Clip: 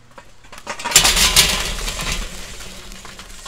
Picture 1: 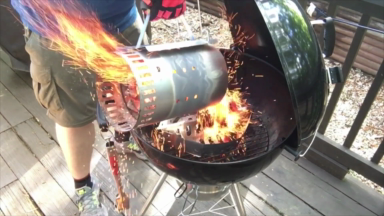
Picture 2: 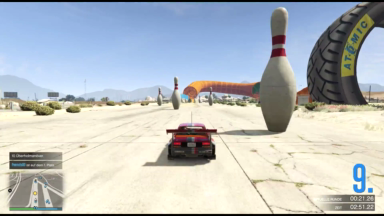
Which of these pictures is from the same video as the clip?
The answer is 1